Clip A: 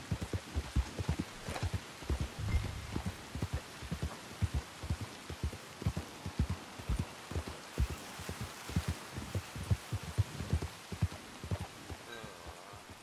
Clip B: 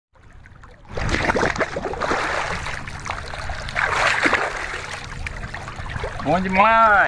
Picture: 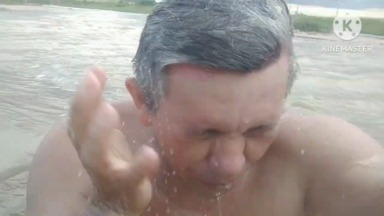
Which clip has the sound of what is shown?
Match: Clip B